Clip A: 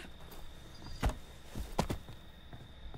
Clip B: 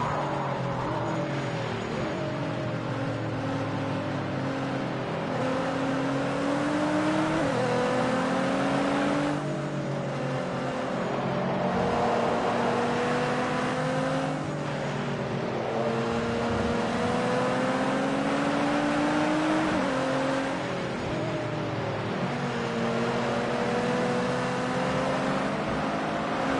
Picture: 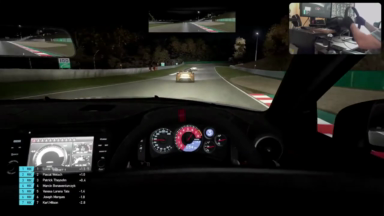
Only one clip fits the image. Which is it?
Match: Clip B